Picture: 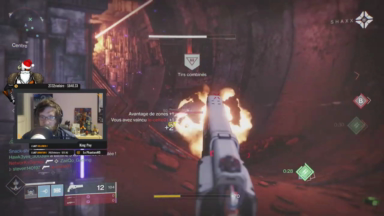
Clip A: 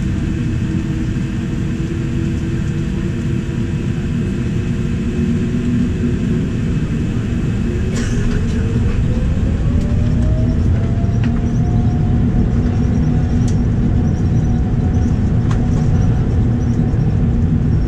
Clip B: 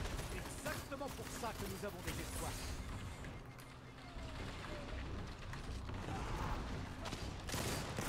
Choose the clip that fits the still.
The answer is B